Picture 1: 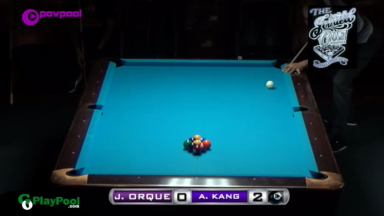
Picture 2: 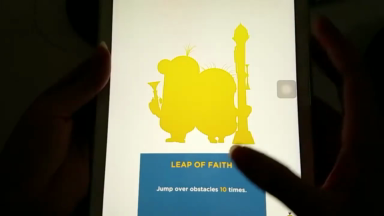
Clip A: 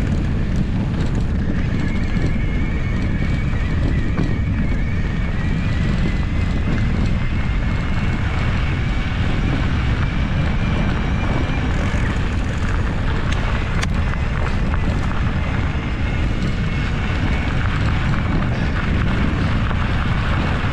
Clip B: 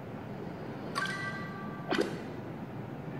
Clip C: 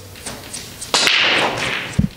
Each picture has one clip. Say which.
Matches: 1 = C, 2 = B